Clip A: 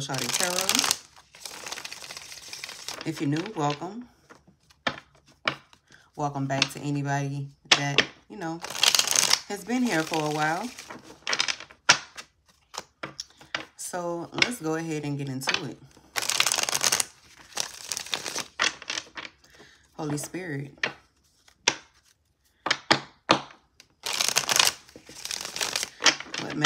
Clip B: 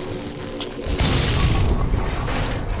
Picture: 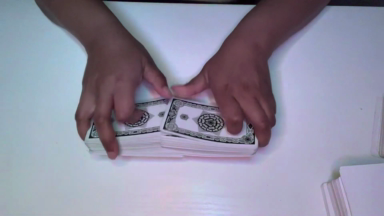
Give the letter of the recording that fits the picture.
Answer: A